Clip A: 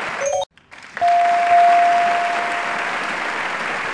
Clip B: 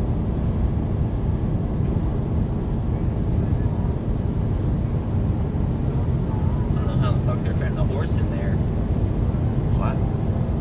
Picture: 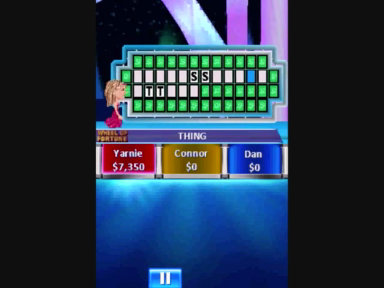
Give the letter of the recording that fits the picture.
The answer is A